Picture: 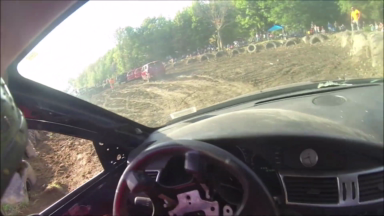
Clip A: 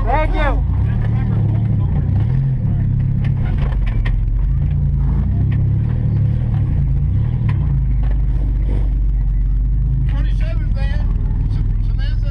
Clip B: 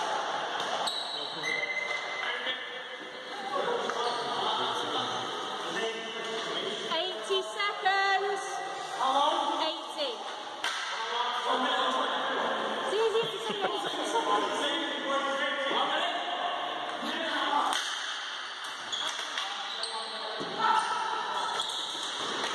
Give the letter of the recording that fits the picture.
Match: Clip A